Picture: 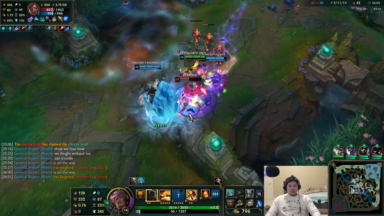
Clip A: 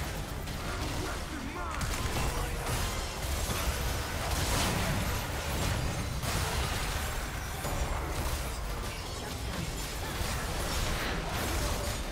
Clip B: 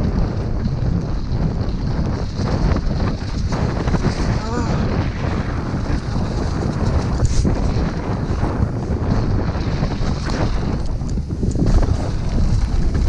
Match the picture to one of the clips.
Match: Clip A